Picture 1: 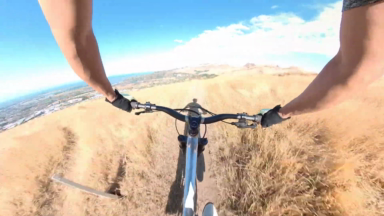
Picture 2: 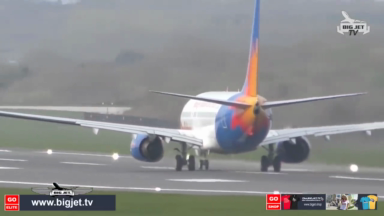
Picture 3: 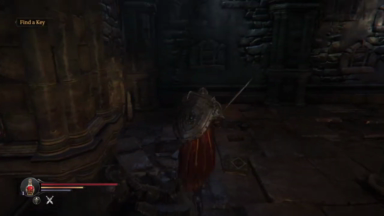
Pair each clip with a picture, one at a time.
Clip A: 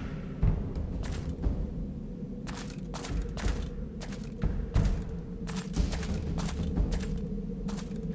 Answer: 3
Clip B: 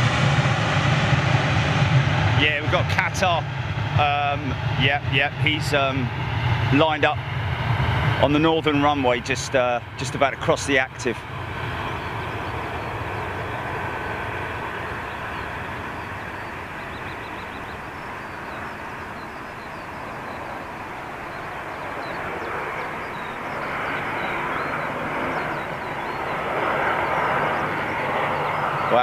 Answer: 2